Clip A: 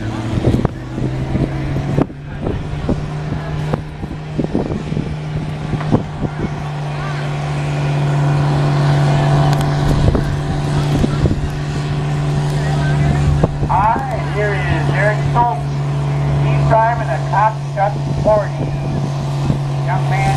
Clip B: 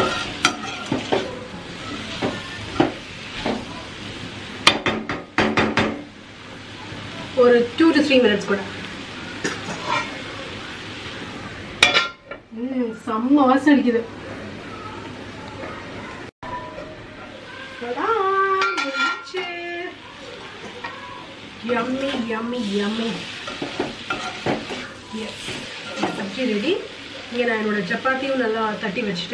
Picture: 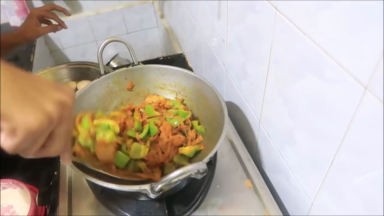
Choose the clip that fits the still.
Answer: B